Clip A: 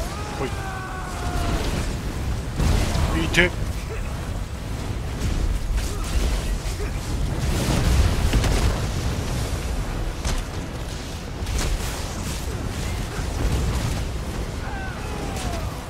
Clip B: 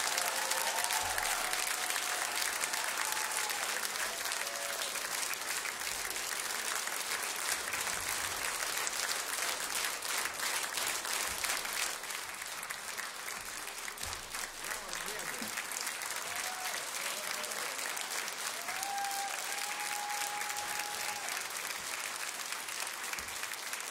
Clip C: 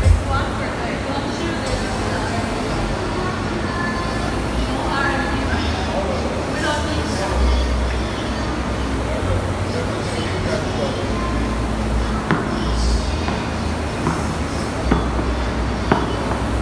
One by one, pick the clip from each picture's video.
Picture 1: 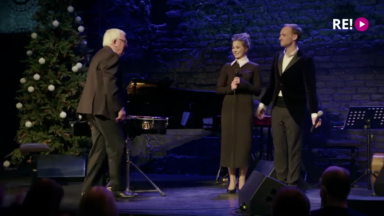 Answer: B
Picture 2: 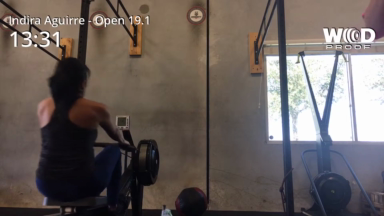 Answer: C